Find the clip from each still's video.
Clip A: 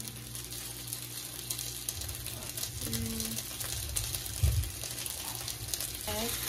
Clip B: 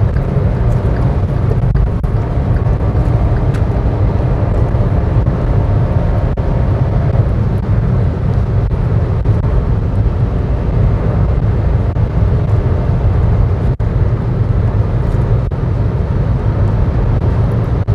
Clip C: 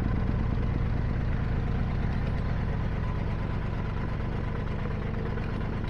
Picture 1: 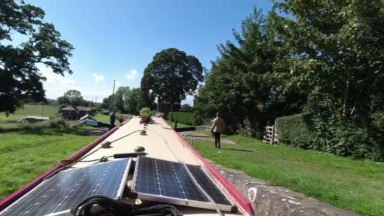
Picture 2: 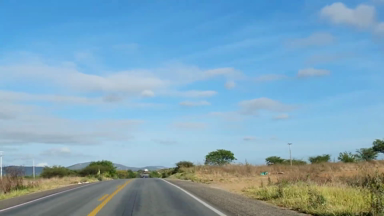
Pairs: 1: C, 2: B